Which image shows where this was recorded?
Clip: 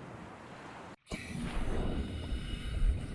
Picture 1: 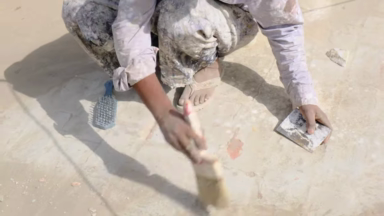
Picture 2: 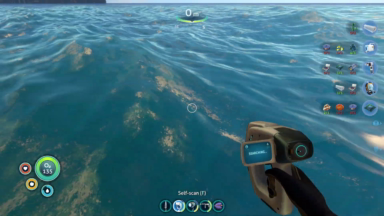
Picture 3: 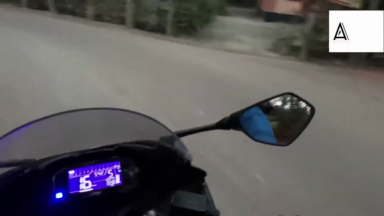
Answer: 2